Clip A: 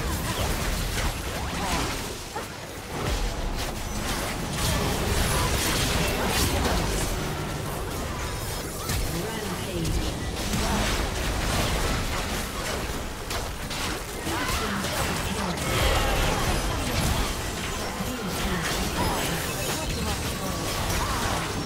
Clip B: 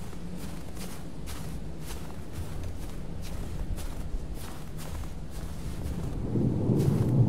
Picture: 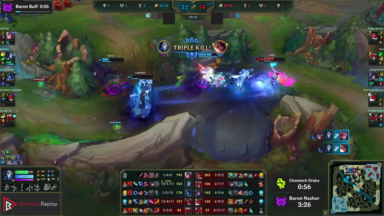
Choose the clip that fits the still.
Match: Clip A